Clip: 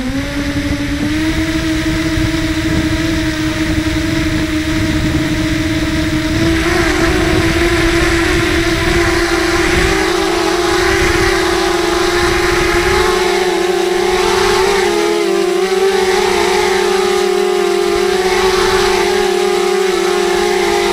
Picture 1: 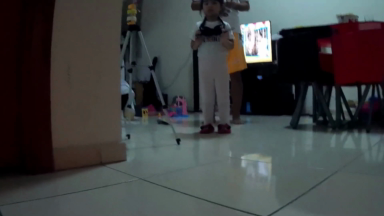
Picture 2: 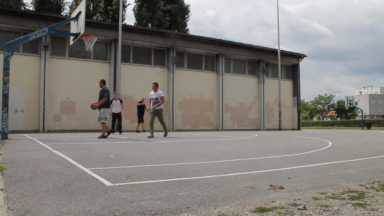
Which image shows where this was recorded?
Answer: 1